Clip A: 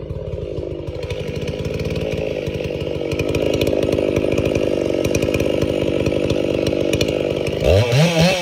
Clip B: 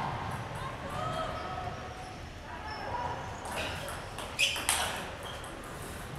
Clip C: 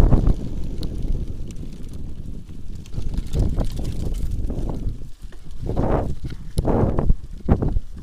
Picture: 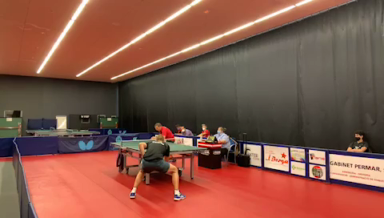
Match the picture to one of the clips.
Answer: B